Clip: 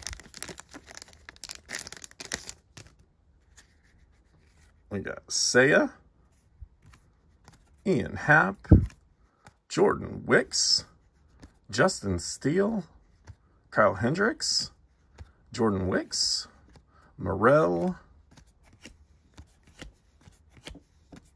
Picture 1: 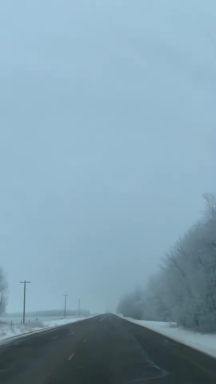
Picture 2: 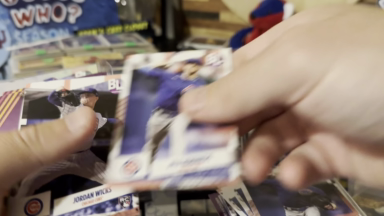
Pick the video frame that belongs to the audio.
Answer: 2